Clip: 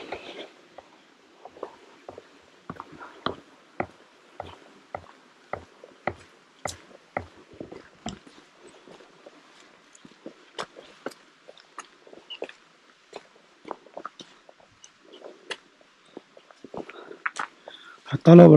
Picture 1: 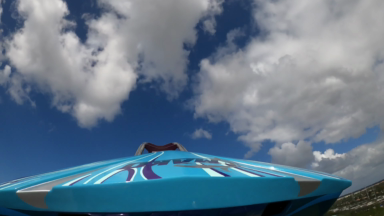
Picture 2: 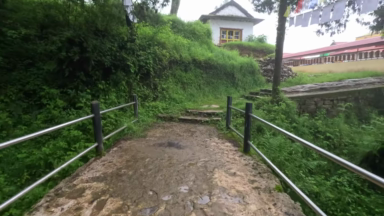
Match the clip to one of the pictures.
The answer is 2